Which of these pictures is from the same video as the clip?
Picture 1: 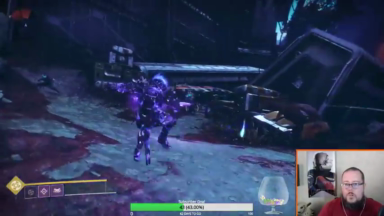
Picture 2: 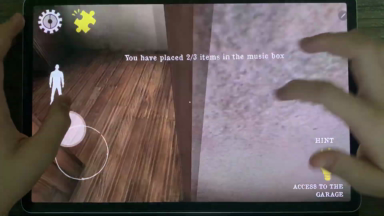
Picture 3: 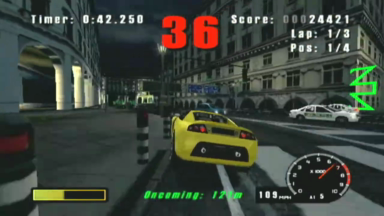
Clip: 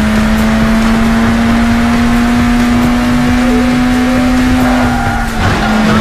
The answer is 3